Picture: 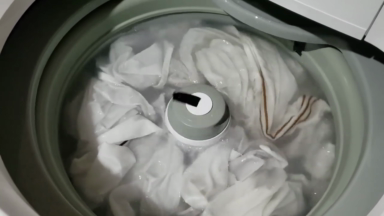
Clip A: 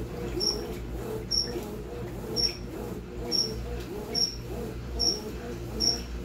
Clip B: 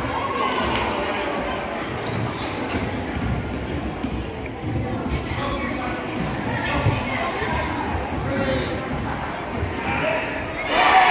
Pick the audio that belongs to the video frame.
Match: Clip A